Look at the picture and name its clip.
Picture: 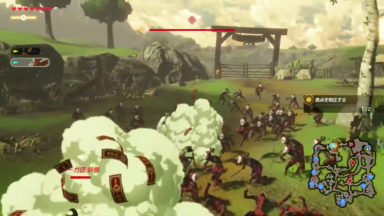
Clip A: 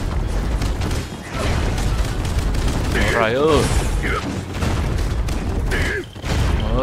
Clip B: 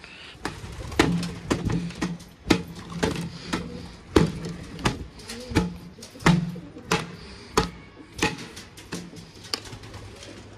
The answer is A